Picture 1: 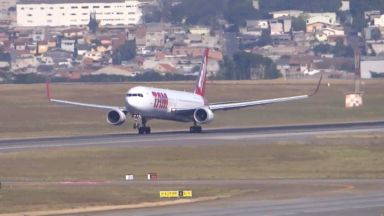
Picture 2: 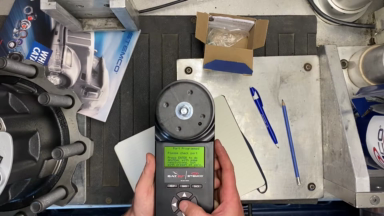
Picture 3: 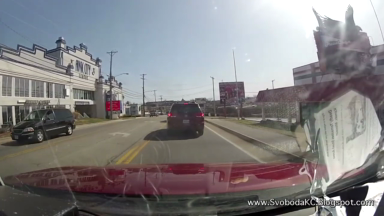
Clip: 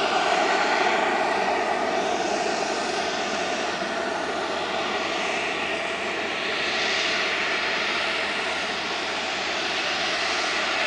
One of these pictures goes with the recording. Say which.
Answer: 1